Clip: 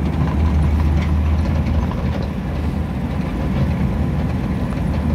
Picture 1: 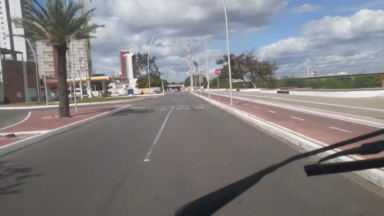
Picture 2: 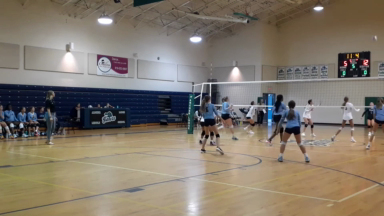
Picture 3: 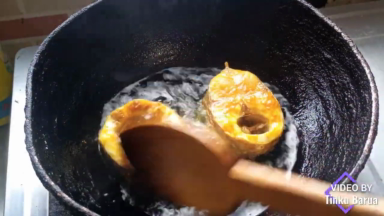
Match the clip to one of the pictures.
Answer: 1